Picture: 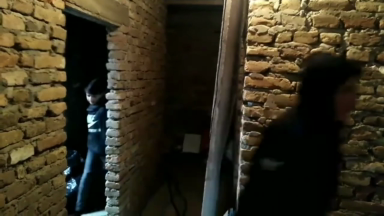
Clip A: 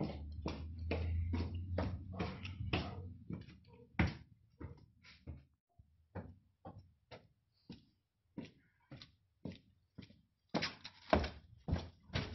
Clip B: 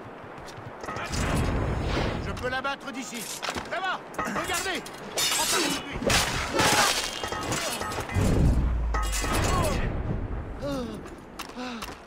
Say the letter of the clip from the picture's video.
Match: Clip A